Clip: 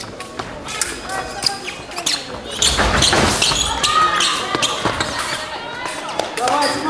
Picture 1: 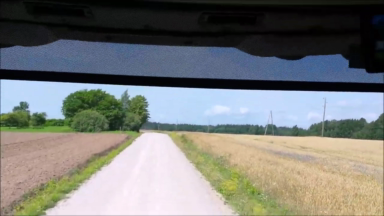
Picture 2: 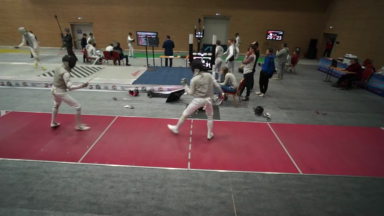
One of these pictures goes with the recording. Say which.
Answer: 2